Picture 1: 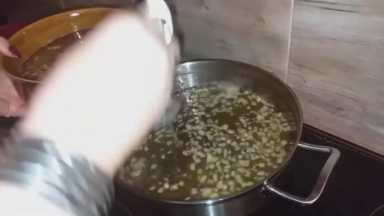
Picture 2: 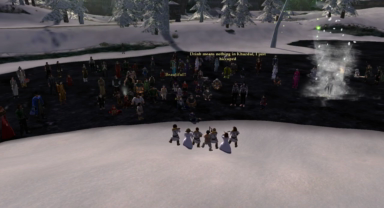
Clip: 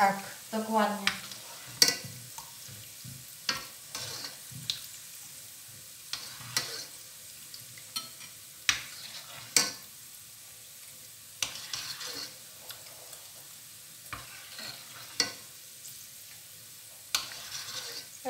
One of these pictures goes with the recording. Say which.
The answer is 1